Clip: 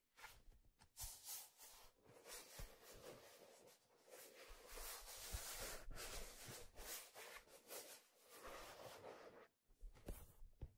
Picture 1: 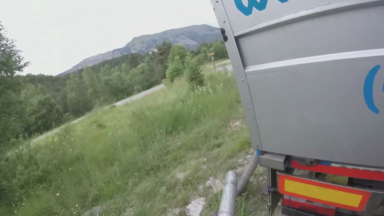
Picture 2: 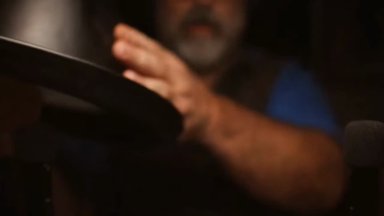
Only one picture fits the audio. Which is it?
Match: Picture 2